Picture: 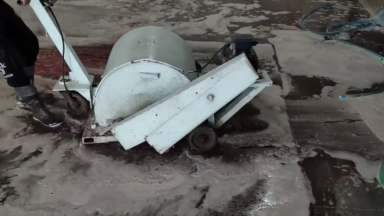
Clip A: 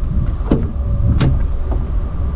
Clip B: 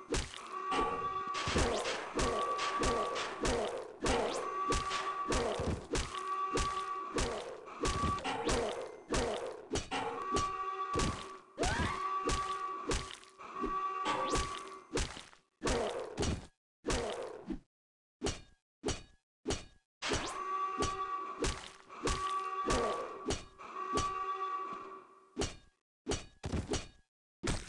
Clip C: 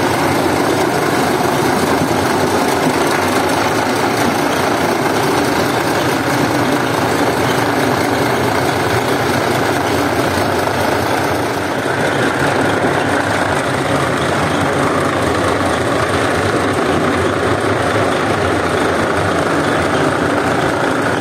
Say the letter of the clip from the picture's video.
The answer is C